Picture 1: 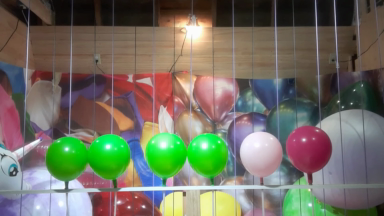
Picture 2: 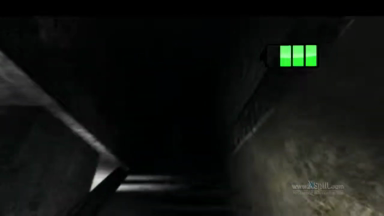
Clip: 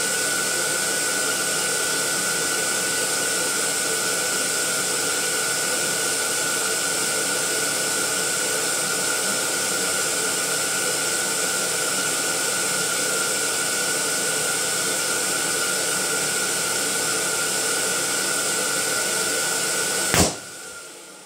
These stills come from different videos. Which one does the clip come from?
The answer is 1